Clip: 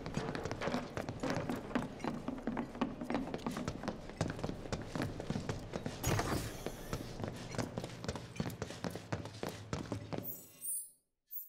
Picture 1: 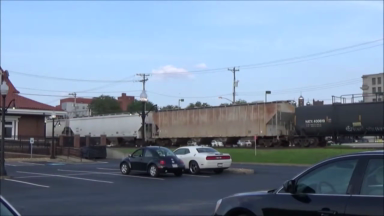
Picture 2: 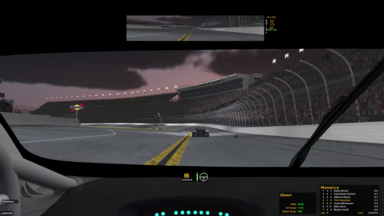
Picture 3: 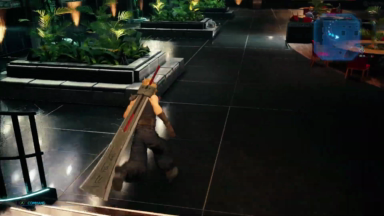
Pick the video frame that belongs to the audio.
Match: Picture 3